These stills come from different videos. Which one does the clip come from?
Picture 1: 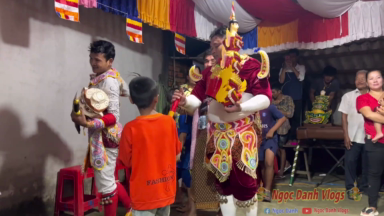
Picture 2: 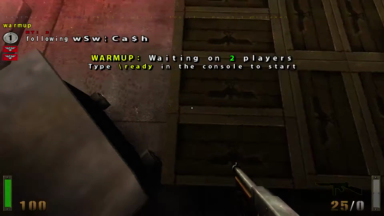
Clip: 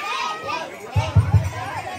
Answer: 1